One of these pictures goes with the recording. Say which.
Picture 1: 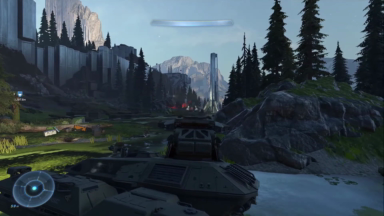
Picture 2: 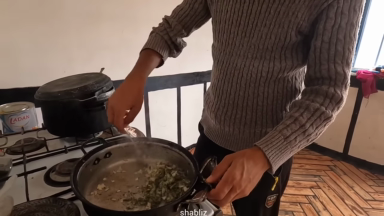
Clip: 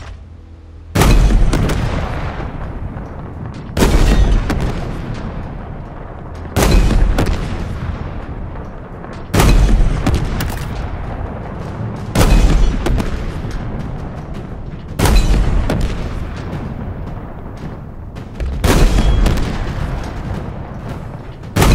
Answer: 1